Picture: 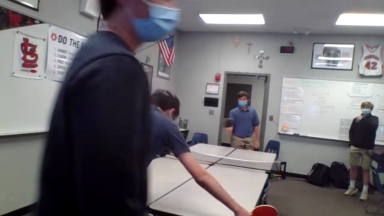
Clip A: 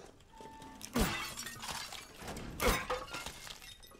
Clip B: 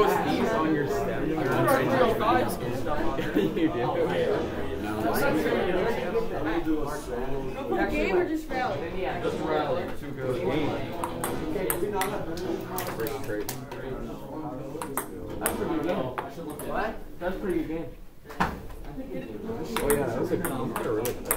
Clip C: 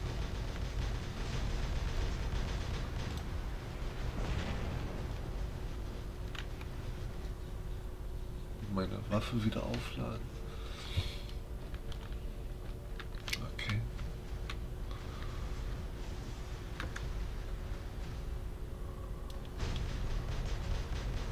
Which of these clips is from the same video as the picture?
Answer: B